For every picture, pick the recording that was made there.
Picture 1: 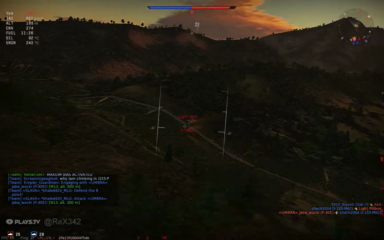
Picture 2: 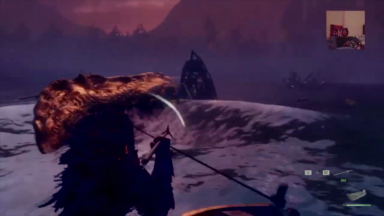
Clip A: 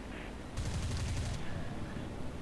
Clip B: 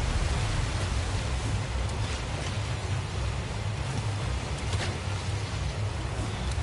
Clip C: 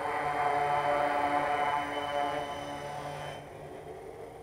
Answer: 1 A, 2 B